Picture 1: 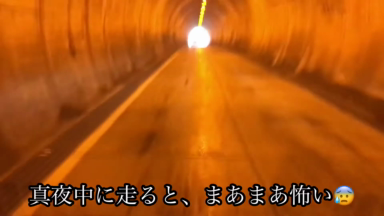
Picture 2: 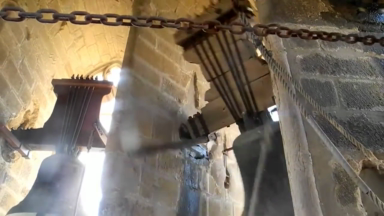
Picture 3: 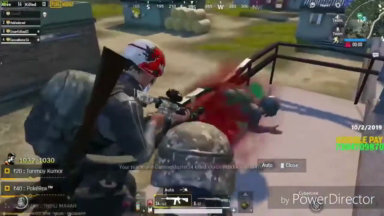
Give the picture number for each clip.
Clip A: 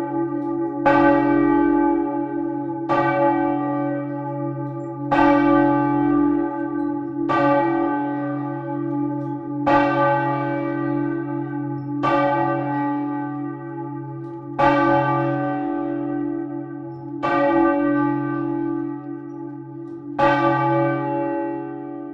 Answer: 2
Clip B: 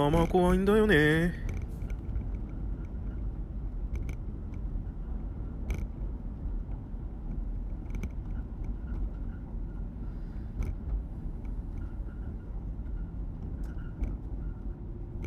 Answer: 1